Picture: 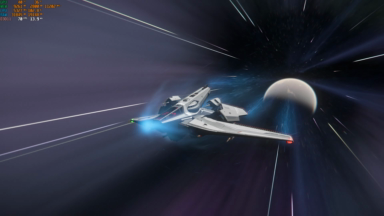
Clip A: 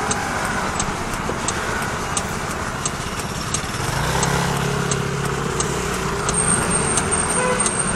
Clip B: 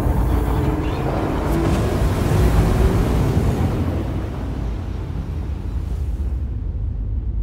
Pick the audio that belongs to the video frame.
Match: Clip B